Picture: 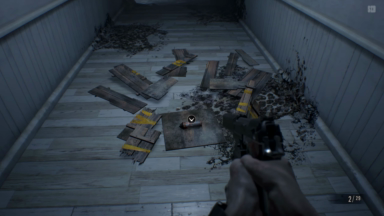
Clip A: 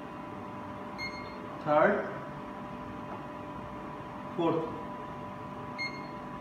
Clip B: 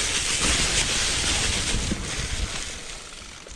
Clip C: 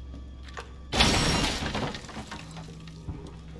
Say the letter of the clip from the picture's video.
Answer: C